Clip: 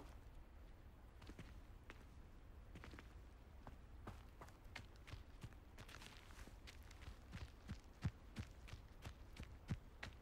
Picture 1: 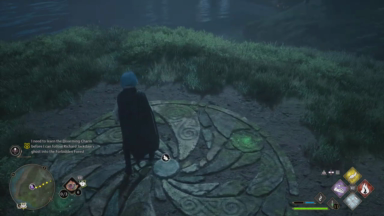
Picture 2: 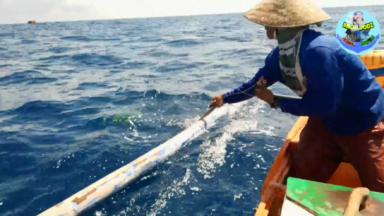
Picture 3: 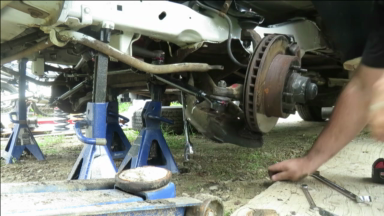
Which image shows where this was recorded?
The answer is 1